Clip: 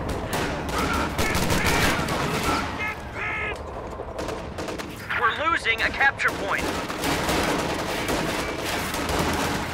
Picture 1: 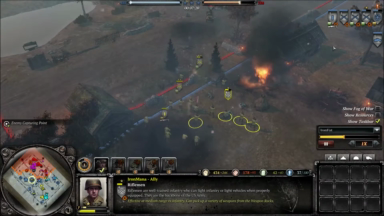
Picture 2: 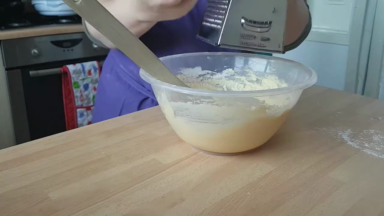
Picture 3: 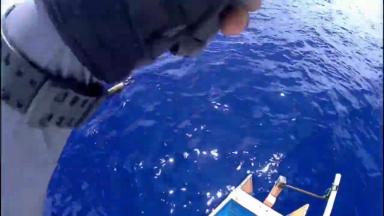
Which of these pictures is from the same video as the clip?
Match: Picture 1